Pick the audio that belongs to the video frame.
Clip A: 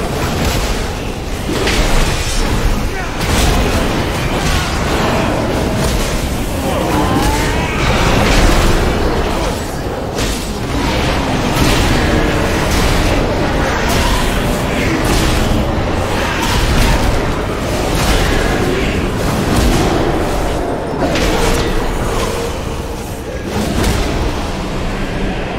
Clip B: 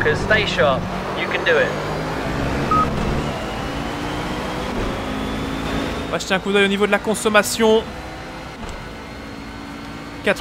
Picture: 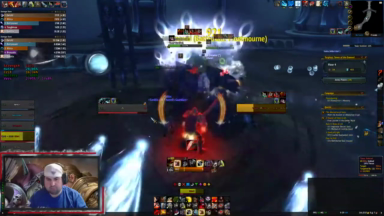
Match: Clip A